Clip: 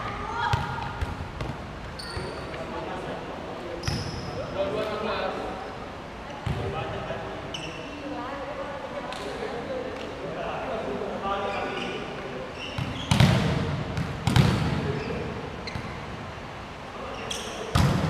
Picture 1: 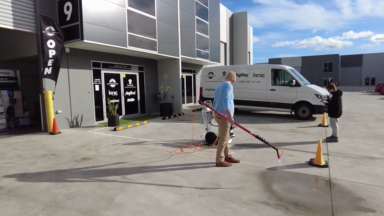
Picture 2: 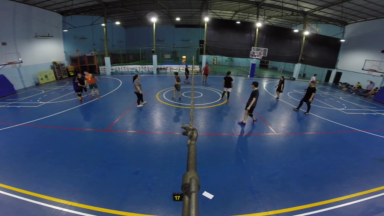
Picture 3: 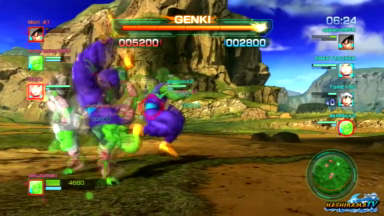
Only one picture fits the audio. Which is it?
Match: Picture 2